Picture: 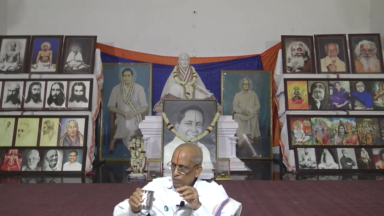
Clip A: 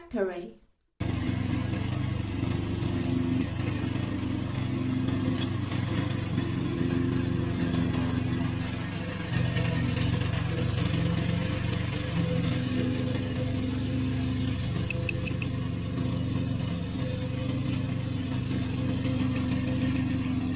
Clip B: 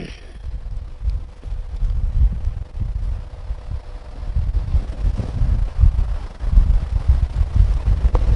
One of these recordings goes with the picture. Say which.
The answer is B